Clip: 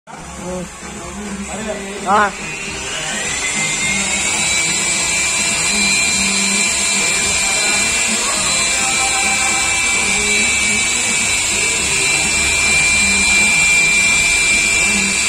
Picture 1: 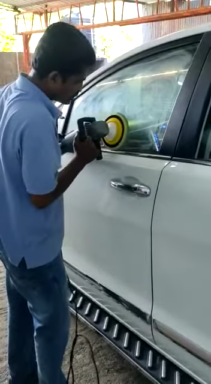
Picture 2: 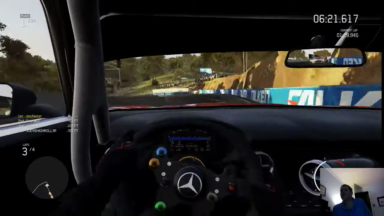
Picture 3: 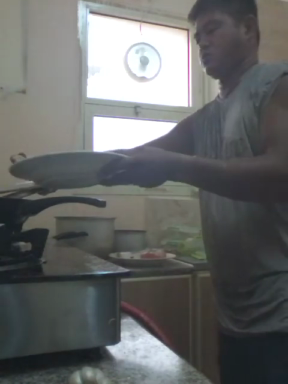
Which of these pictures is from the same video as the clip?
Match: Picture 1